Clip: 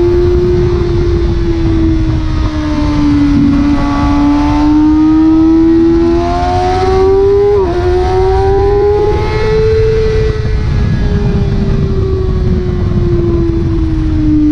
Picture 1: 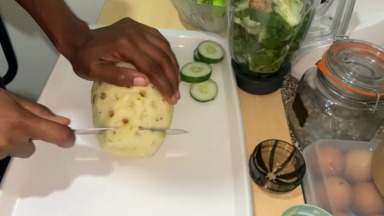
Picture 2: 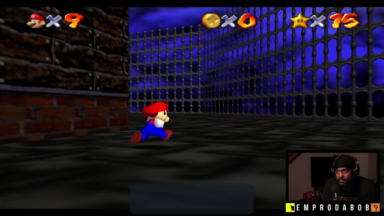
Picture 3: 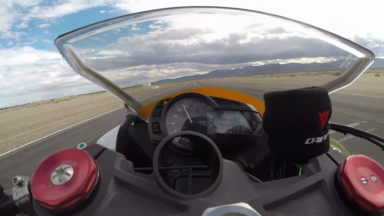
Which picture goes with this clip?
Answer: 3